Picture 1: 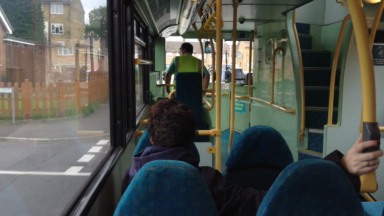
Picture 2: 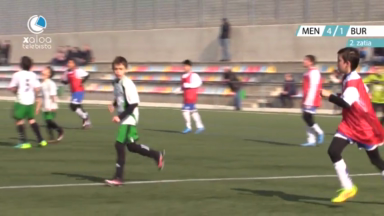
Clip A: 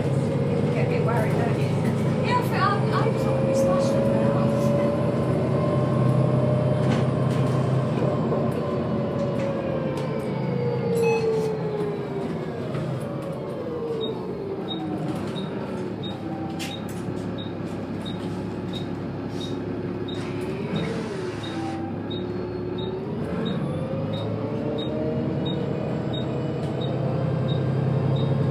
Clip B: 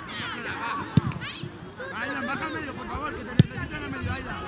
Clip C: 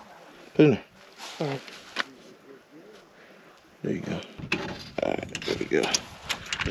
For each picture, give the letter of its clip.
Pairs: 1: A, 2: B